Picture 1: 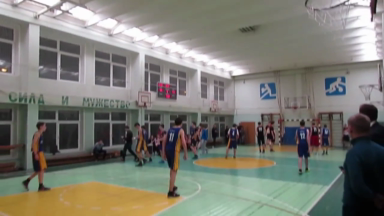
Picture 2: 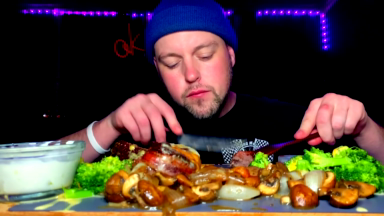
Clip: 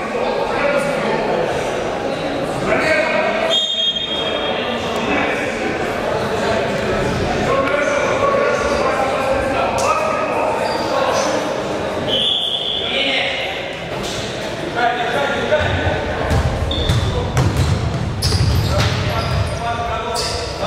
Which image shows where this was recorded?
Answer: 1